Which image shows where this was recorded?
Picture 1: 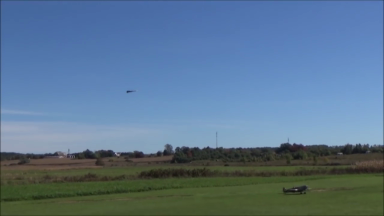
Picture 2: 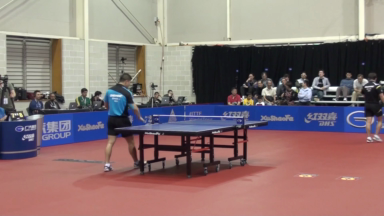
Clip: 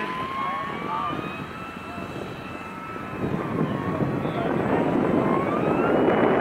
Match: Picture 1